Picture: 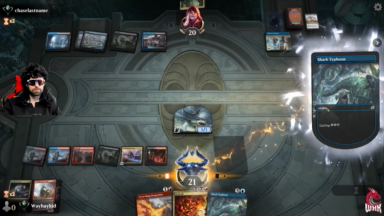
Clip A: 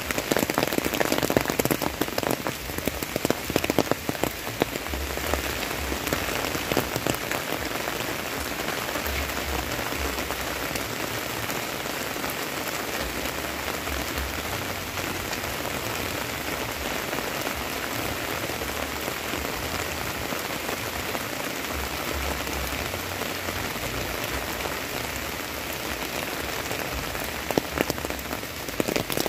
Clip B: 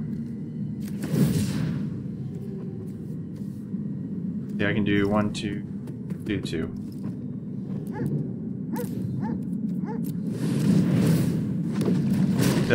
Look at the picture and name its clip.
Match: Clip B